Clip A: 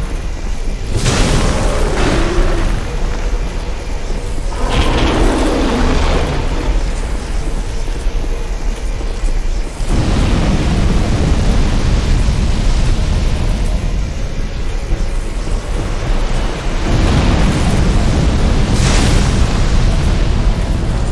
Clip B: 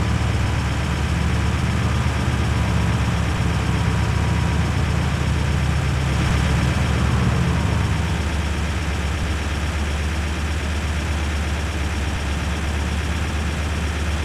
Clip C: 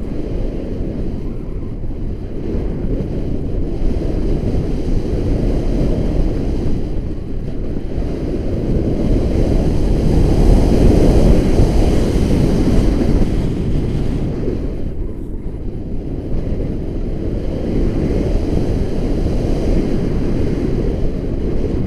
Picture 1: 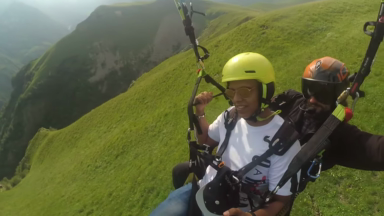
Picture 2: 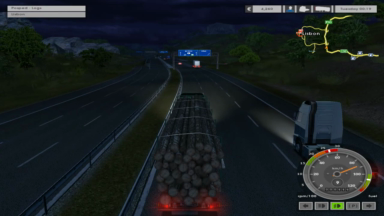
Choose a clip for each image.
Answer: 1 C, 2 B